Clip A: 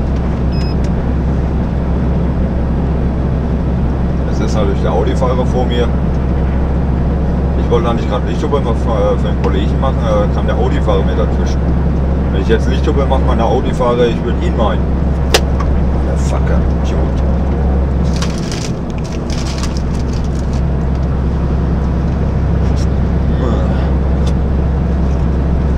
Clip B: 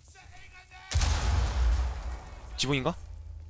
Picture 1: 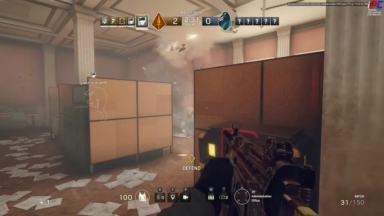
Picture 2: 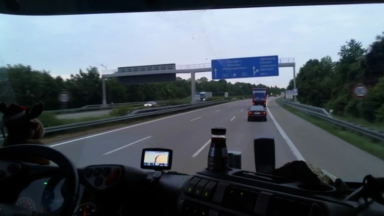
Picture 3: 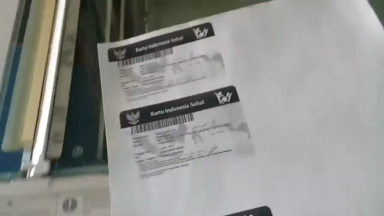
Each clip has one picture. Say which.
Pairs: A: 2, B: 1